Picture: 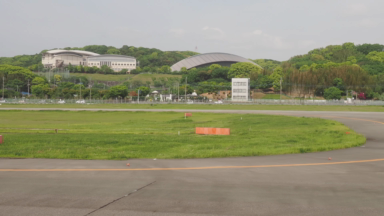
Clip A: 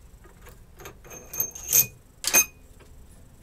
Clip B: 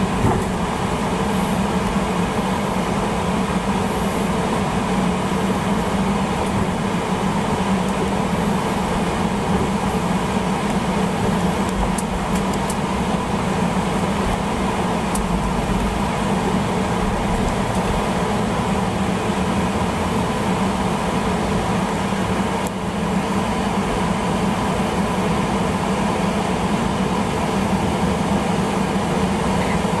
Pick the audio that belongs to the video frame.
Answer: B